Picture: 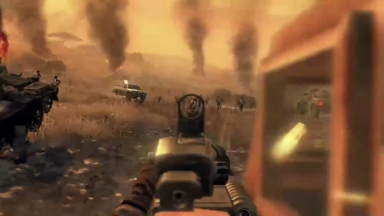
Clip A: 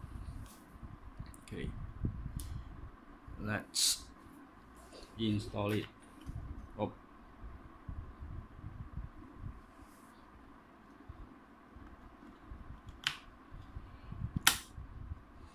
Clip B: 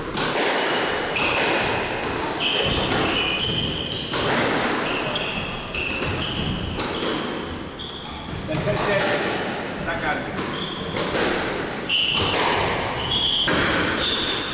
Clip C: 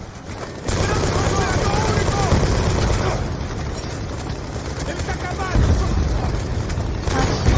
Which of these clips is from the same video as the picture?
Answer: C